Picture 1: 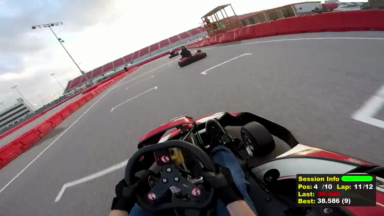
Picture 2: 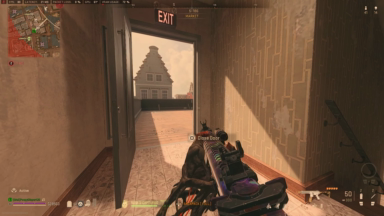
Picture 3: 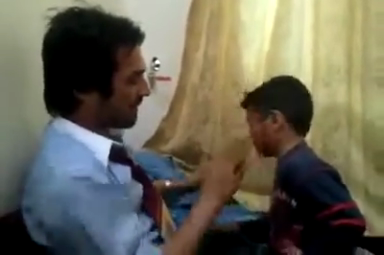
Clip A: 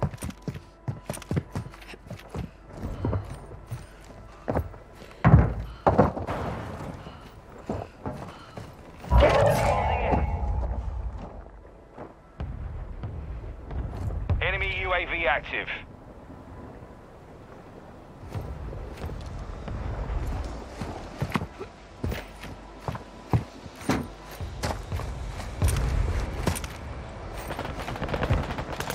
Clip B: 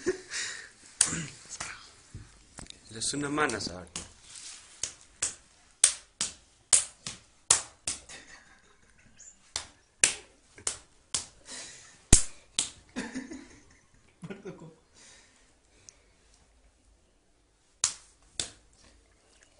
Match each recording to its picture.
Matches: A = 2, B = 3